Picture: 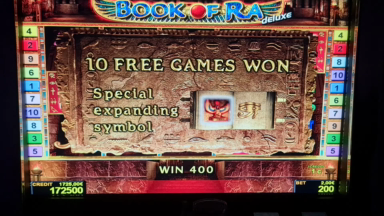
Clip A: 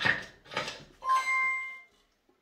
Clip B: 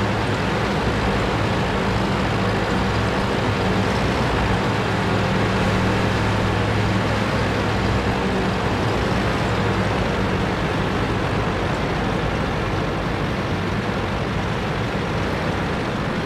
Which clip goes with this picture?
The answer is A